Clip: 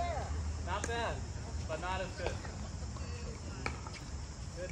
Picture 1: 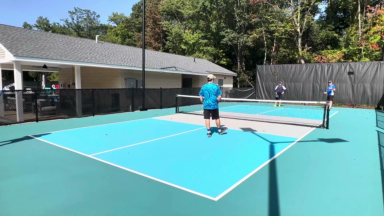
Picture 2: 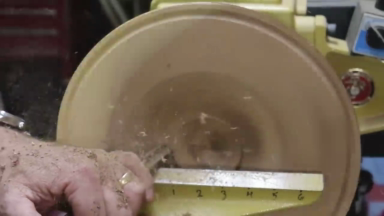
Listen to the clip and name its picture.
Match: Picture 1